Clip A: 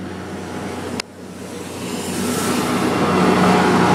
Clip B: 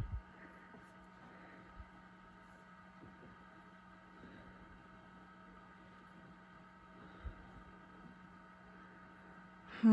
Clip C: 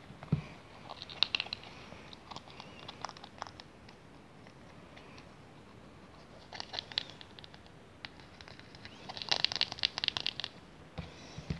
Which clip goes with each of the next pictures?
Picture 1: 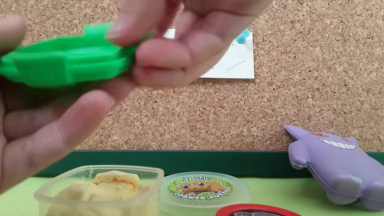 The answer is C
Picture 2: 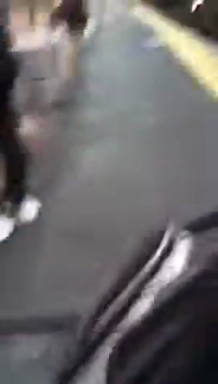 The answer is A